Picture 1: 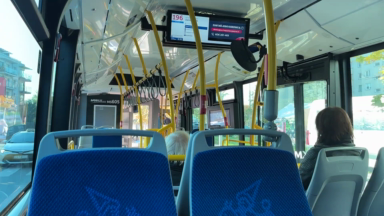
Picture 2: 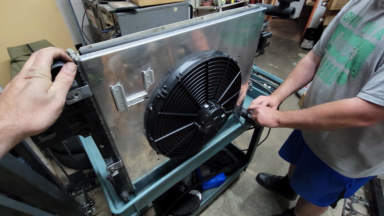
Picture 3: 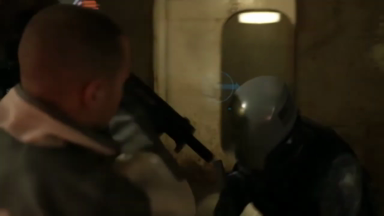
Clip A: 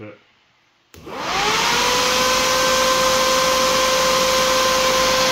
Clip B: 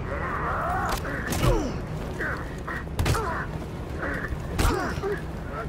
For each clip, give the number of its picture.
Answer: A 2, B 3